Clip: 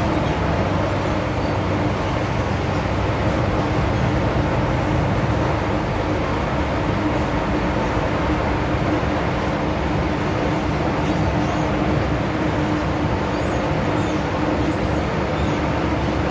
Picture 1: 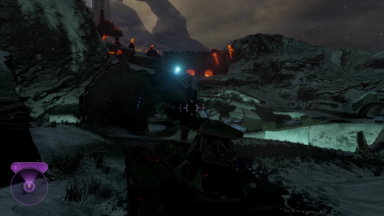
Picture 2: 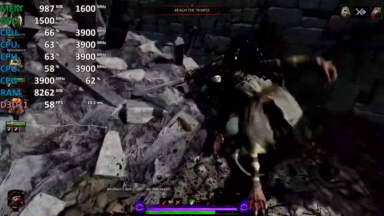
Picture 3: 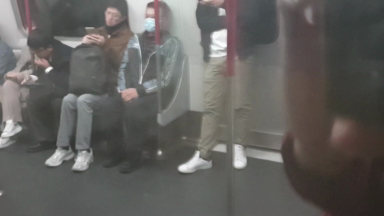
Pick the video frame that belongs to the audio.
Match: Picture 3